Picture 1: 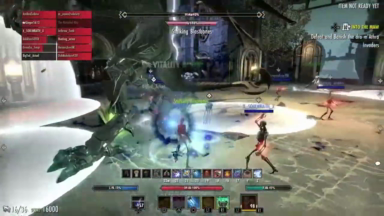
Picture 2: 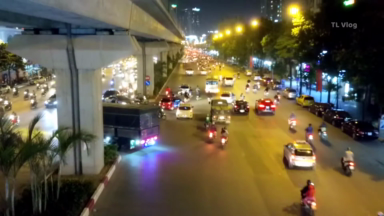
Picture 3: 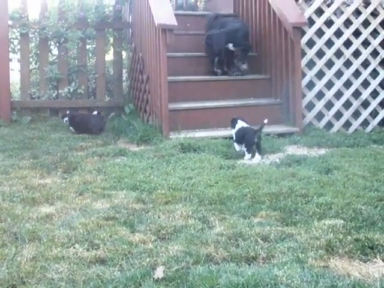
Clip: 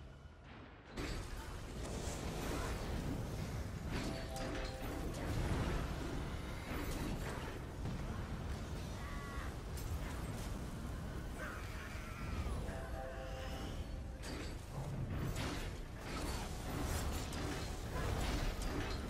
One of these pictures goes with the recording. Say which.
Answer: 1